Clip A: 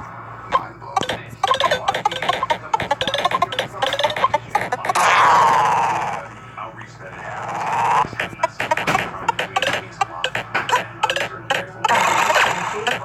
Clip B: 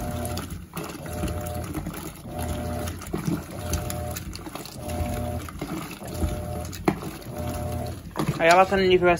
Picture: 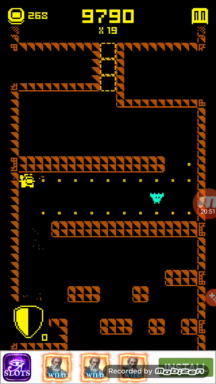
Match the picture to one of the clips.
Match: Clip A